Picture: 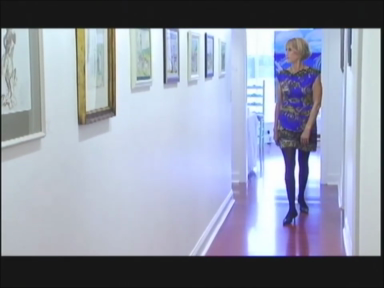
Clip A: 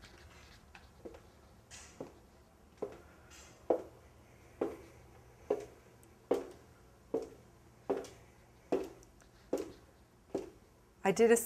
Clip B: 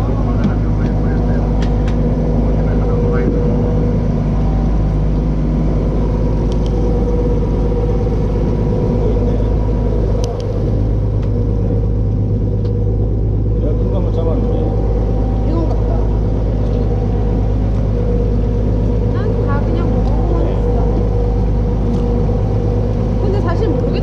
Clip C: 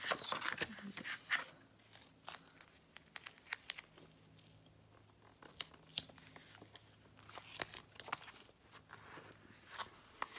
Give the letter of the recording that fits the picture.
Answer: A